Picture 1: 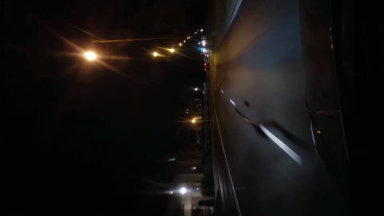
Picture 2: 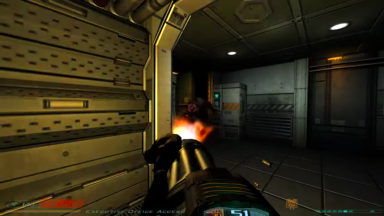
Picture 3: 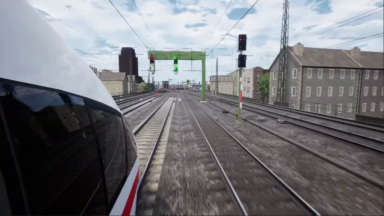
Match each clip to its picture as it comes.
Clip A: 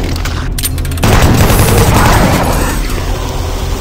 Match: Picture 2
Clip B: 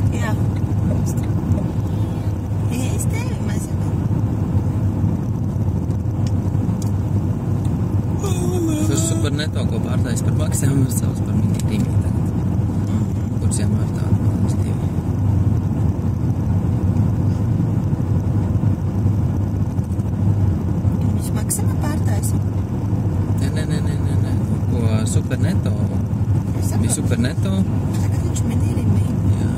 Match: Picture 1